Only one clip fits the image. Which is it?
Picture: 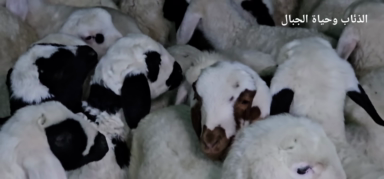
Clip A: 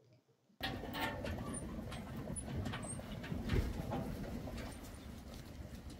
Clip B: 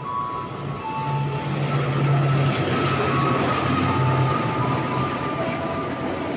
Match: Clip A